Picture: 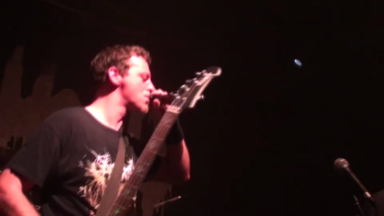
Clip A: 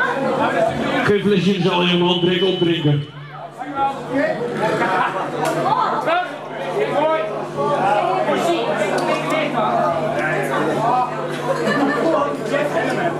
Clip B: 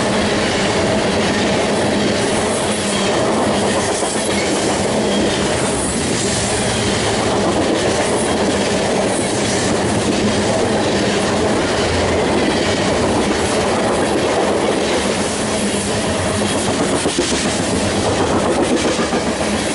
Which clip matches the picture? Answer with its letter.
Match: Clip A